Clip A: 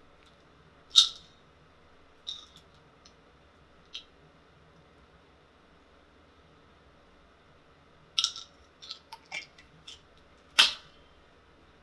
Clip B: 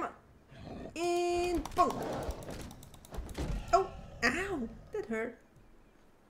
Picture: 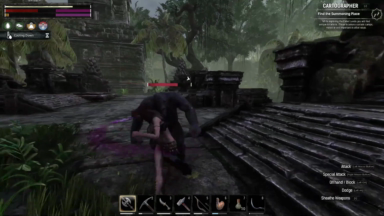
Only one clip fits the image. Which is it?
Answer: B